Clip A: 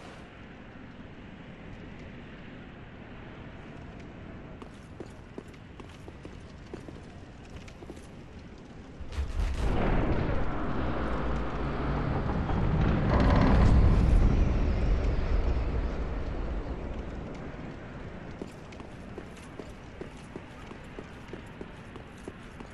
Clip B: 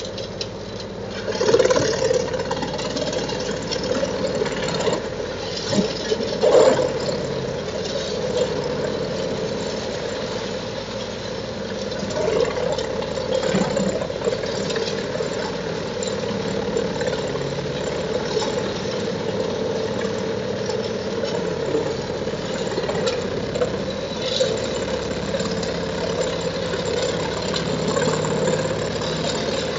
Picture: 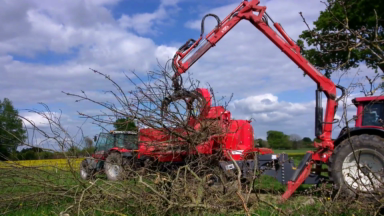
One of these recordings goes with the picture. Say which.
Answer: B